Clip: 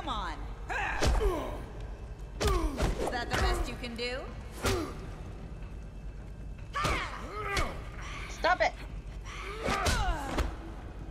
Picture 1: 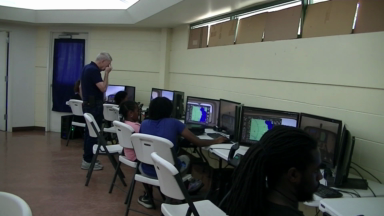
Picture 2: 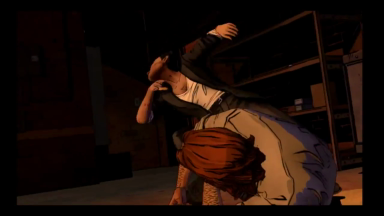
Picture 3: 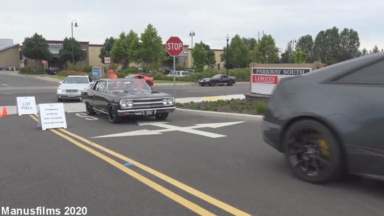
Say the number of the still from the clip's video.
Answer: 2